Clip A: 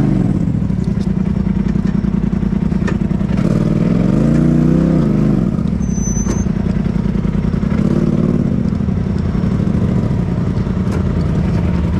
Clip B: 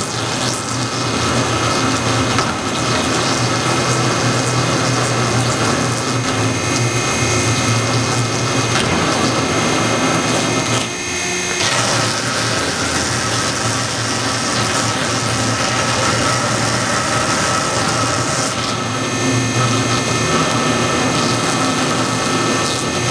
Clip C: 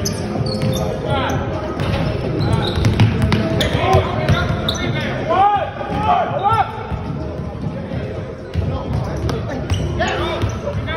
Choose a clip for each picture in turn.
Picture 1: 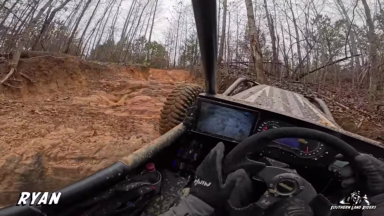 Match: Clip A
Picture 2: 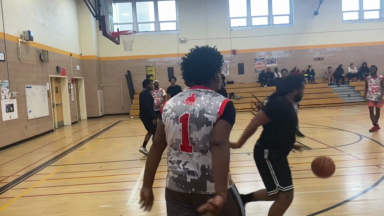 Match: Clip C